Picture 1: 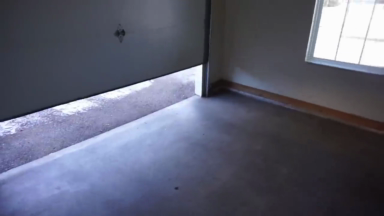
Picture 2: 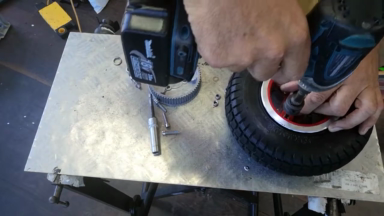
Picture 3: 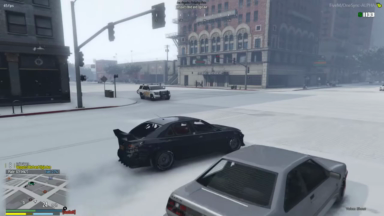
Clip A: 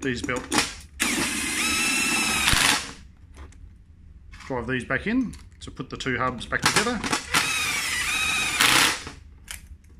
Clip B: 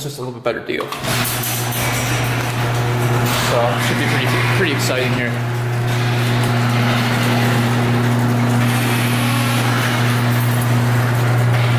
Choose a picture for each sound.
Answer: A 2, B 1